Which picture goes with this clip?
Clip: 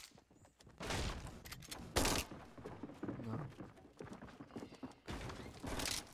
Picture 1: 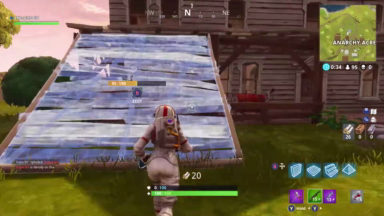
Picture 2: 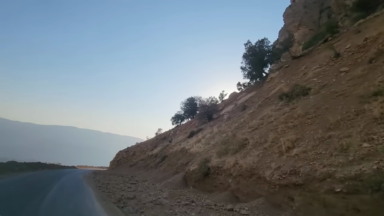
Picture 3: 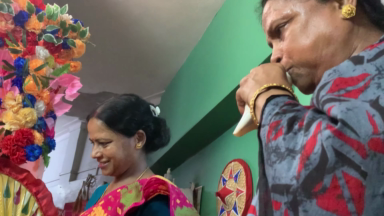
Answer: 1